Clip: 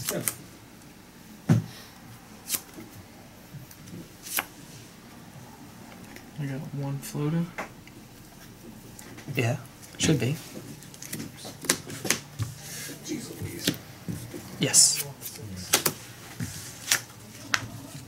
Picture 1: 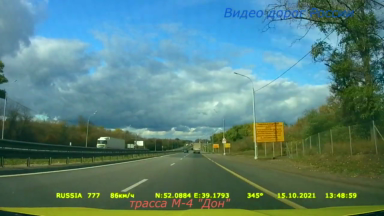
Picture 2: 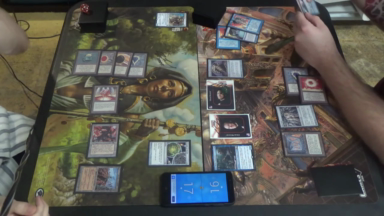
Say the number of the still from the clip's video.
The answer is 2